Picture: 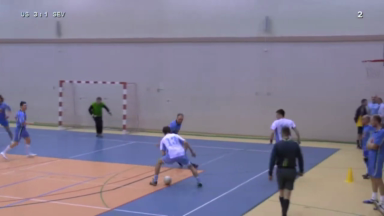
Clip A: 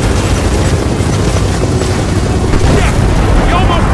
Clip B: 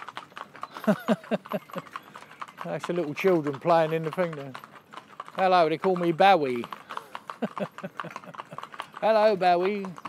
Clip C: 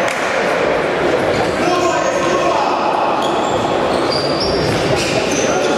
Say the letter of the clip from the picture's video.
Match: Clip C